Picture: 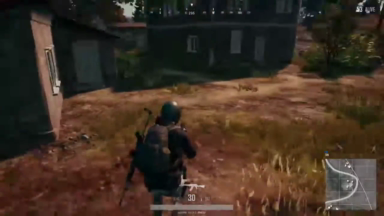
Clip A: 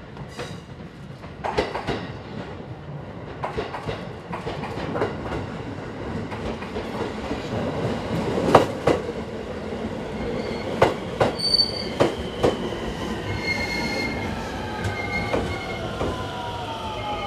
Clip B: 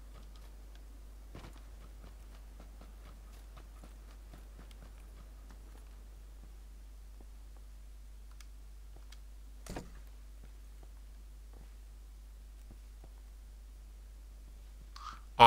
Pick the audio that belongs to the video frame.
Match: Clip B